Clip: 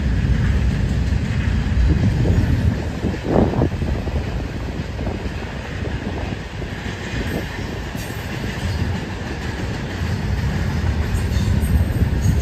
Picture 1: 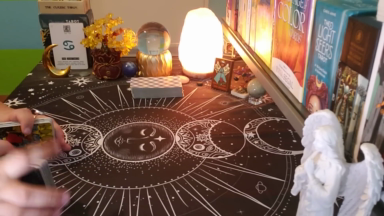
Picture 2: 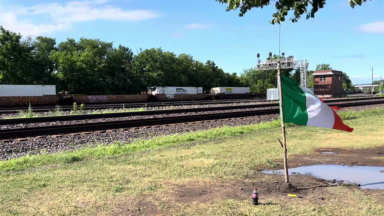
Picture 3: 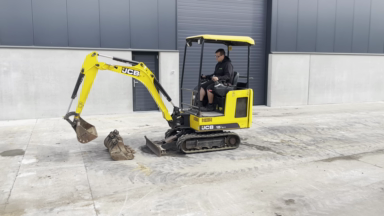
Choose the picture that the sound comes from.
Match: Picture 2